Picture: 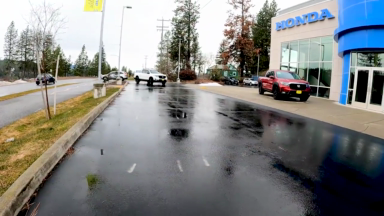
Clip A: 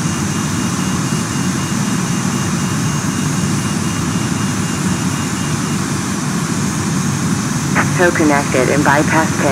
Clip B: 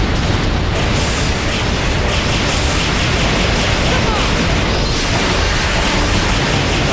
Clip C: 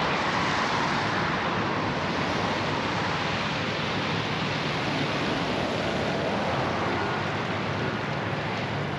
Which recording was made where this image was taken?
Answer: C